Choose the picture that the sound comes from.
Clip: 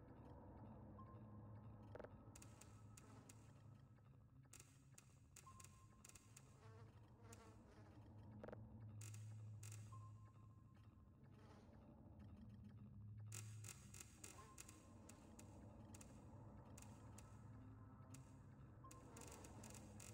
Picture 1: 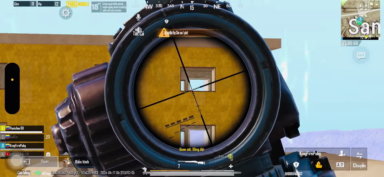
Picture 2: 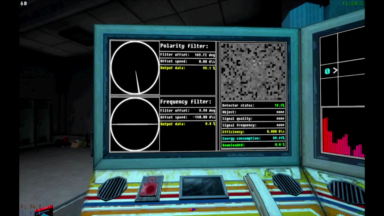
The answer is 2